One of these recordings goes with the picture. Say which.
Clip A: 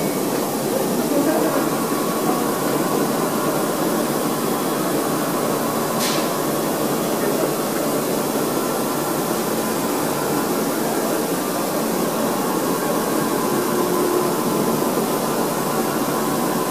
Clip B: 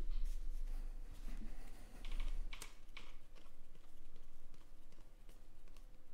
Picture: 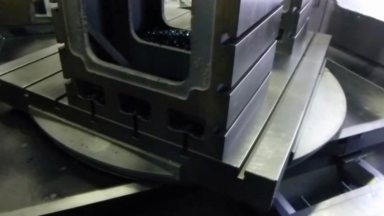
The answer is A